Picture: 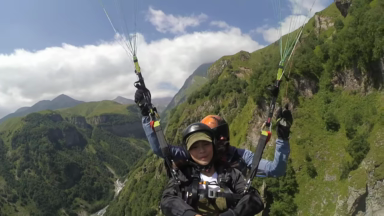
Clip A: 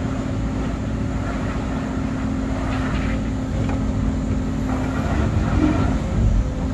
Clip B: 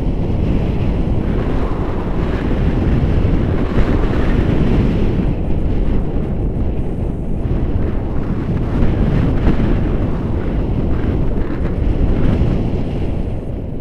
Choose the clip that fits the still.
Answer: B